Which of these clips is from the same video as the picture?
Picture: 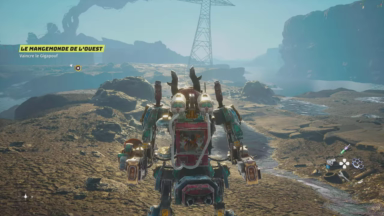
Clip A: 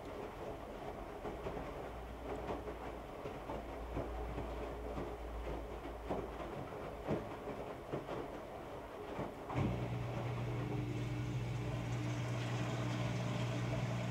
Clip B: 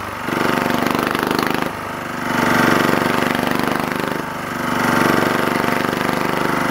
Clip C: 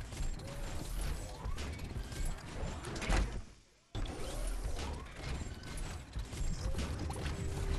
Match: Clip C